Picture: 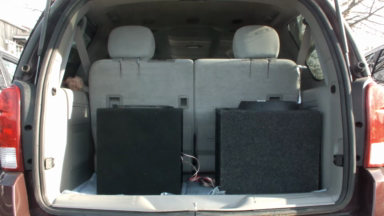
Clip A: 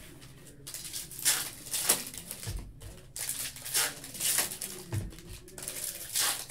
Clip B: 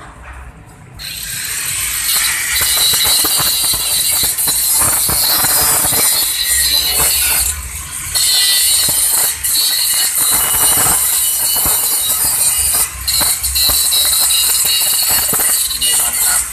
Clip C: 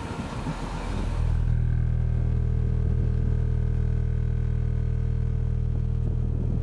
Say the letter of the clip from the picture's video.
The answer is C